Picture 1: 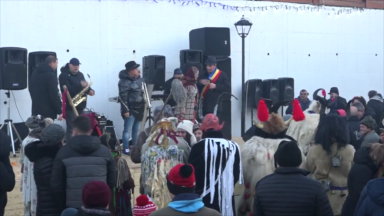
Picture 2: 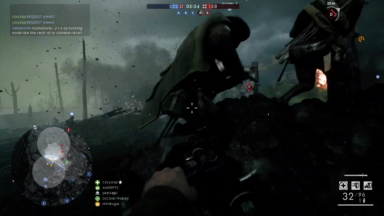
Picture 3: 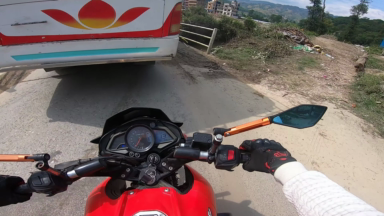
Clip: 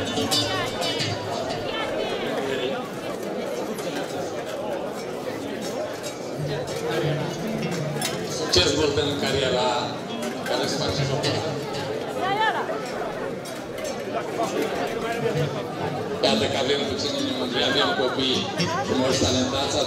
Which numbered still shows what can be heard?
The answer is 1